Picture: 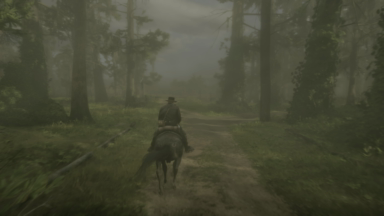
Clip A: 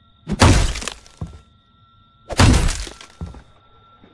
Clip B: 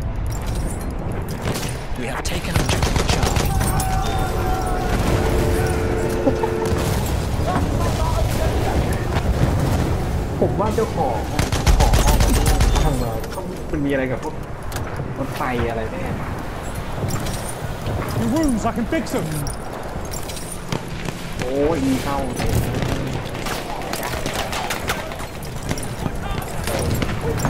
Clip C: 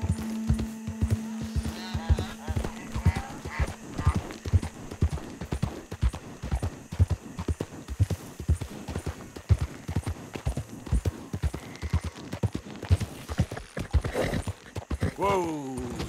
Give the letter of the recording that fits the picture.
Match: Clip C